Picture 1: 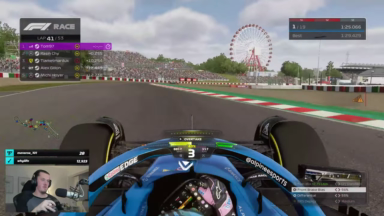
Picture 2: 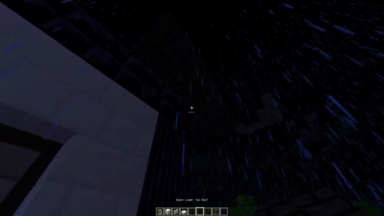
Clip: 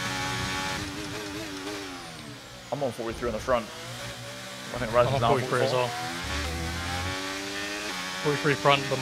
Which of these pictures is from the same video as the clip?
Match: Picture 1